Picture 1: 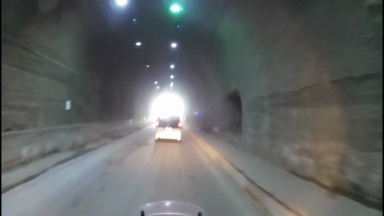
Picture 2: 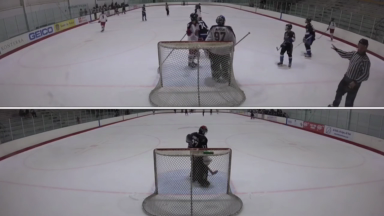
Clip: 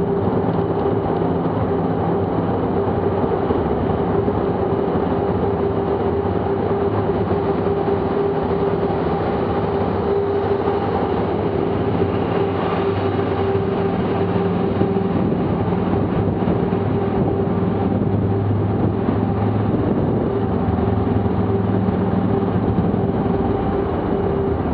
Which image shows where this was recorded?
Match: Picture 1